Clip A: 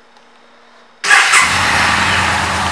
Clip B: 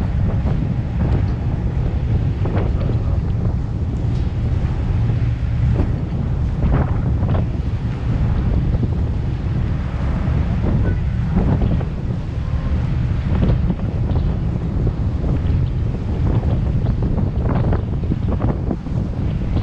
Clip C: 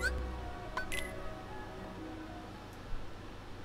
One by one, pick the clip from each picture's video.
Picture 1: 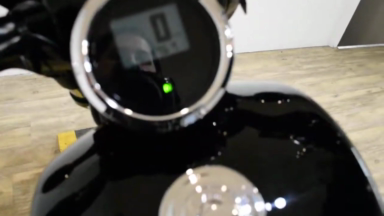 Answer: A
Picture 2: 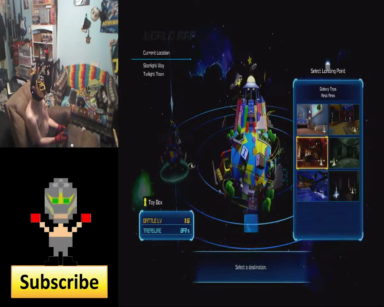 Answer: C